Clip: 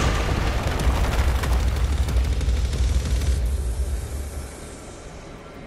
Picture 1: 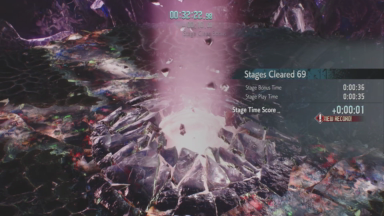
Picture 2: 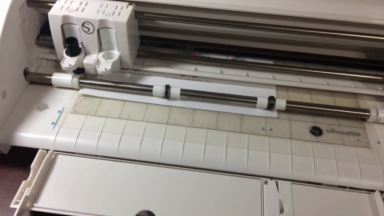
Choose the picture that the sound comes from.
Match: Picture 1